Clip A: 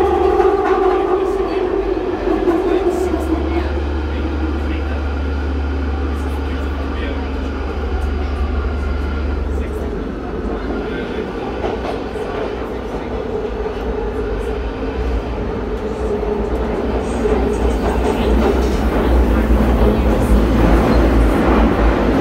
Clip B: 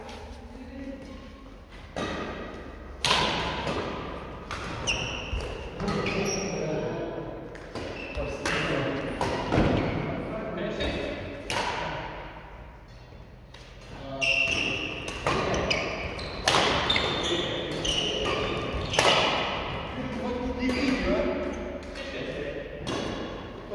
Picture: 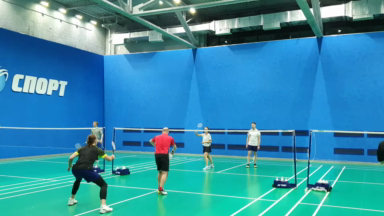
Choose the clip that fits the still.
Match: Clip B